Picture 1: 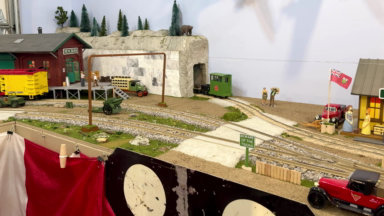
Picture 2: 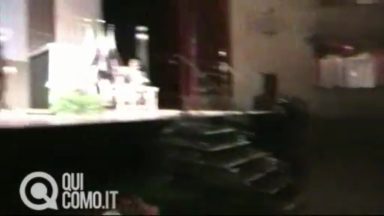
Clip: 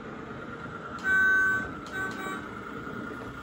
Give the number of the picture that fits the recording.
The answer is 1